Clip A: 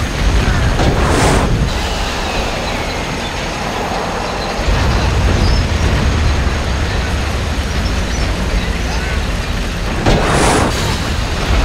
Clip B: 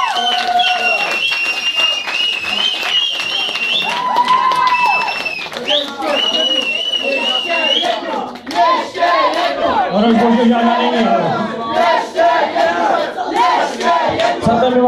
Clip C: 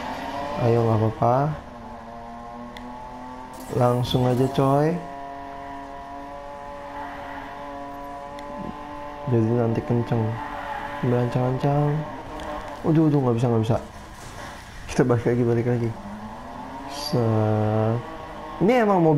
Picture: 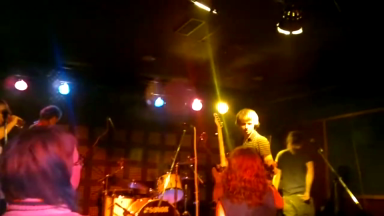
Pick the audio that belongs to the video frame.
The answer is B